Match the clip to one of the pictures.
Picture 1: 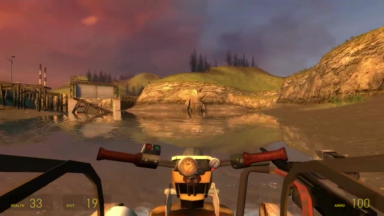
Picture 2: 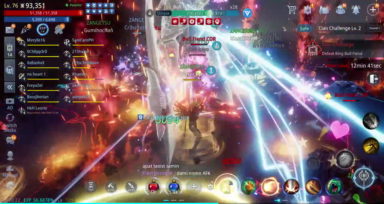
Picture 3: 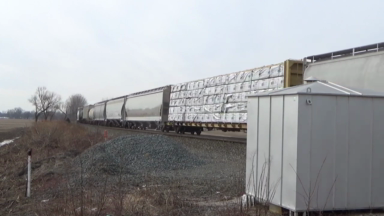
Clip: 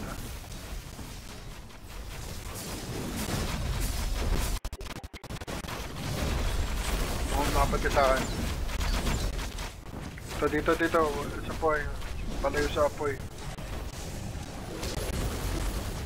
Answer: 2